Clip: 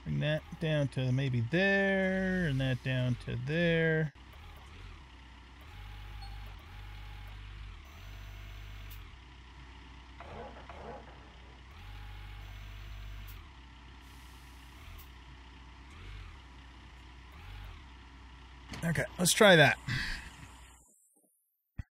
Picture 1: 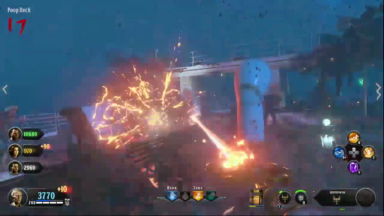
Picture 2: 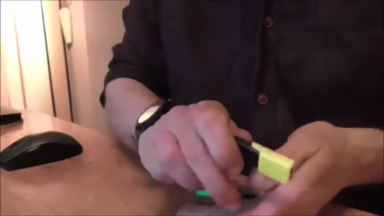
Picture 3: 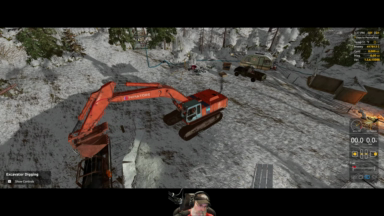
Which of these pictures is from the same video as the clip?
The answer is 3